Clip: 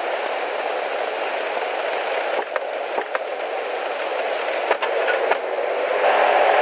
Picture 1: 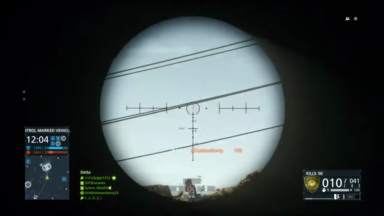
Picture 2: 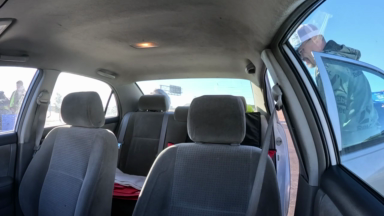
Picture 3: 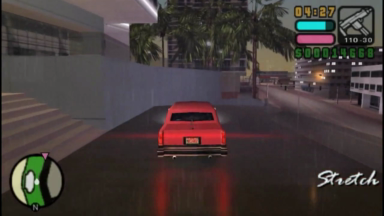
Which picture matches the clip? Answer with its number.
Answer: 3